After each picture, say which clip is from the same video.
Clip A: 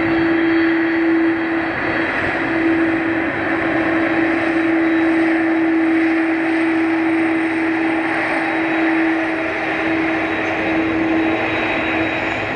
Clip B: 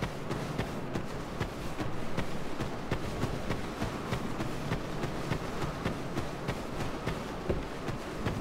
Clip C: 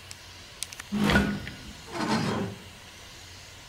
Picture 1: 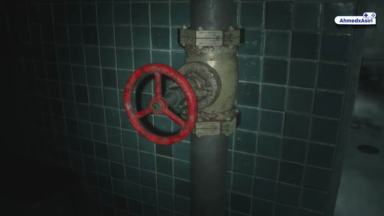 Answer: C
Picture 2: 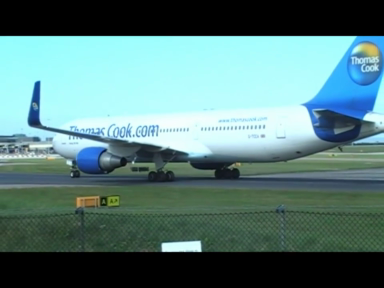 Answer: A